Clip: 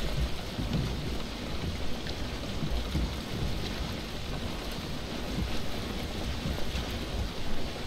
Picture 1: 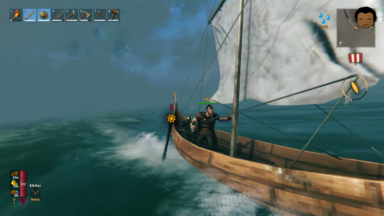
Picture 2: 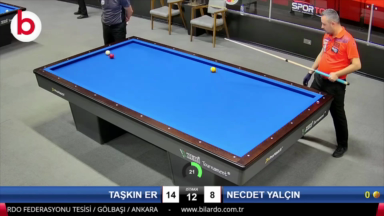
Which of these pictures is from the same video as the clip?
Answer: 1